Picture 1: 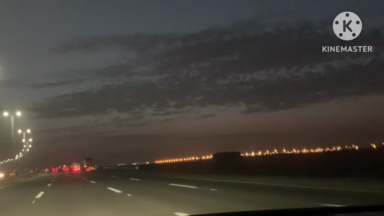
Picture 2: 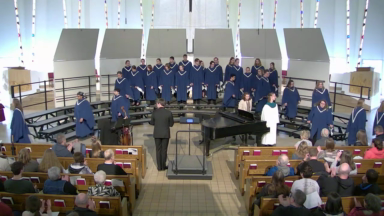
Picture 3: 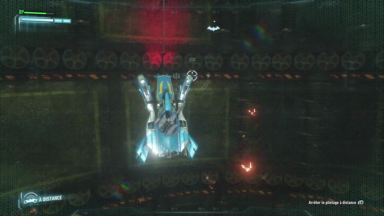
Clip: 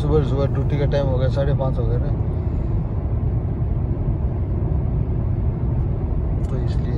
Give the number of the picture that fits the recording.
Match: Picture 1